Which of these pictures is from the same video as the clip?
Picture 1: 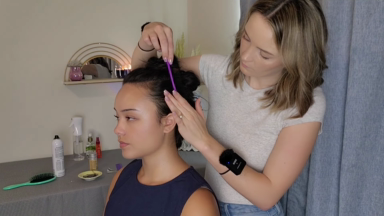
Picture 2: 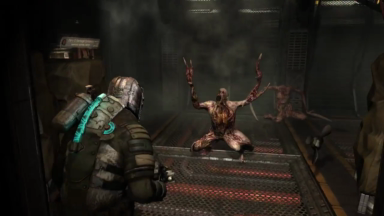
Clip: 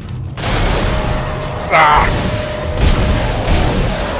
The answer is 2